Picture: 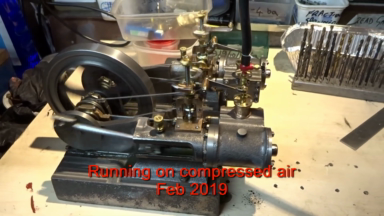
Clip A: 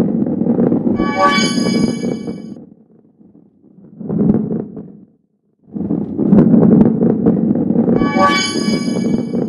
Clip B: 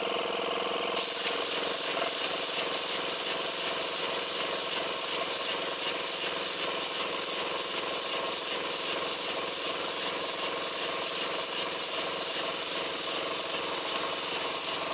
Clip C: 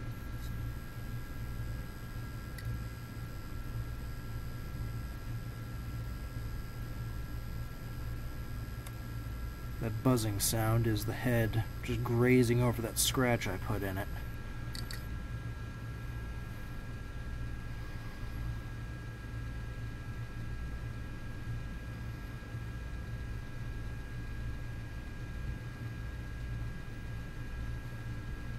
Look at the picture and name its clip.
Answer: B